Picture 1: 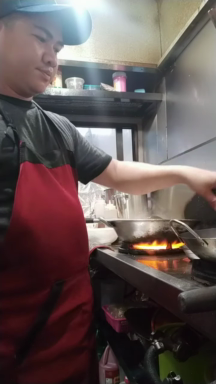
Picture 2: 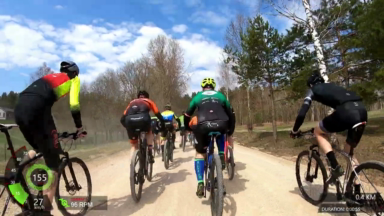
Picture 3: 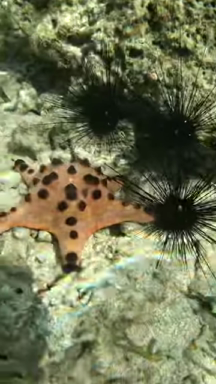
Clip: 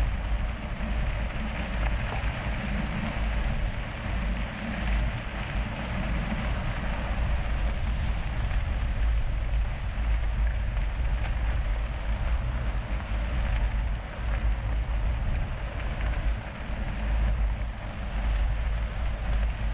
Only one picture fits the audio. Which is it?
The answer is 2